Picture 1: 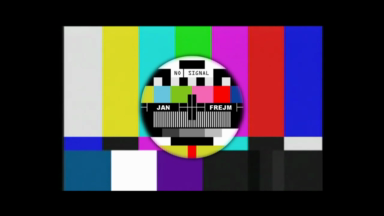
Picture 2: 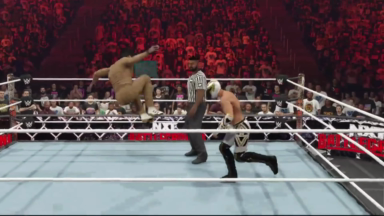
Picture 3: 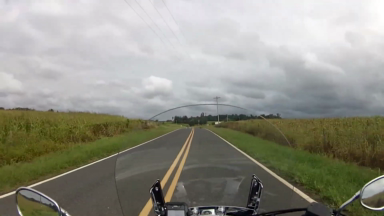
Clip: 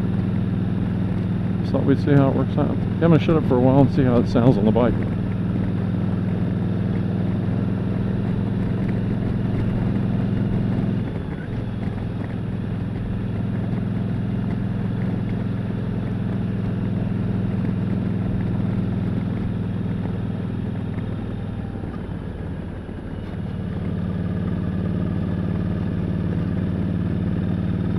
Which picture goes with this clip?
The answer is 3